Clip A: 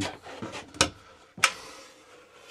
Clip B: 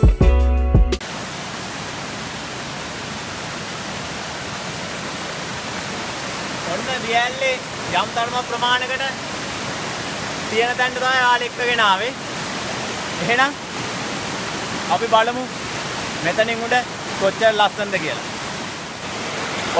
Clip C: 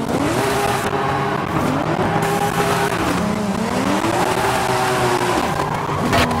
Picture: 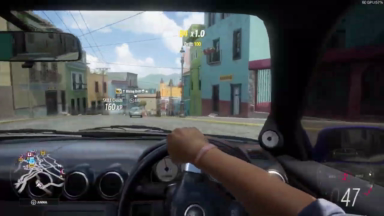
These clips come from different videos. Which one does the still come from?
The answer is C